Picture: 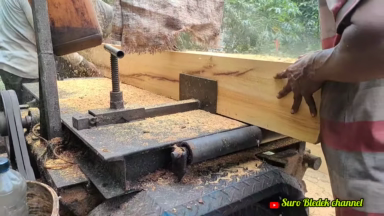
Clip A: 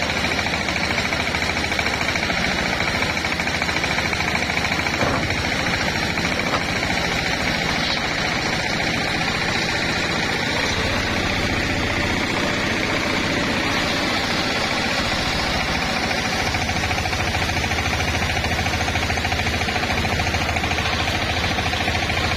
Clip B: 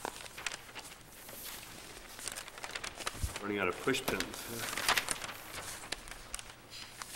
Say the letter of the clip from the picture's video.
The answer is A